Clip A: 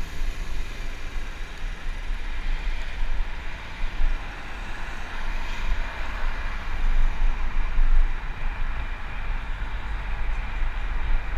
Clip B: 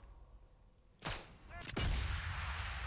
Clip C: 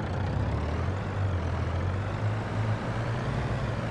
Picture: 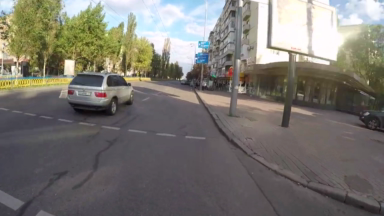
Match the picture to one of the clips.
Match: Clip A